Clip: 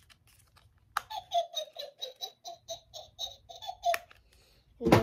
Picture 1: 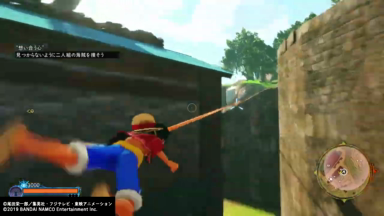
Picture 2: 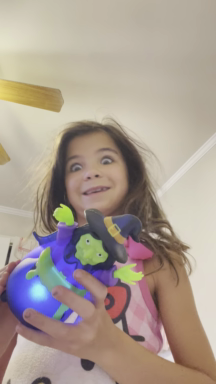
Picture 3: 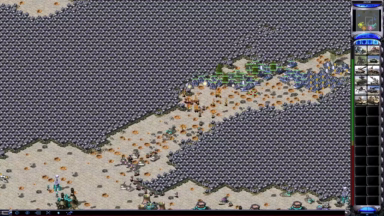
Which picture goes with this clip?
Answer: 2